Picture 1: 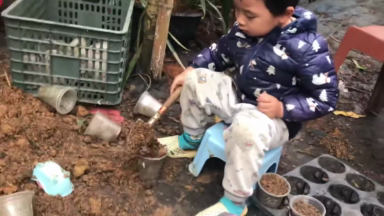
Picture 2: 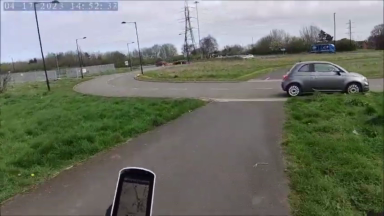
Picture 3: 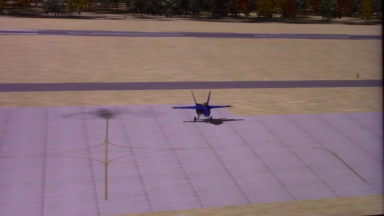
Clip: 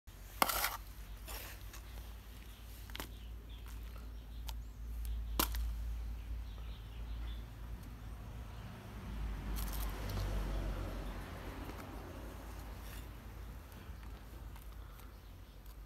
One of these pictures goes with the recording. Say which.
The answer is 1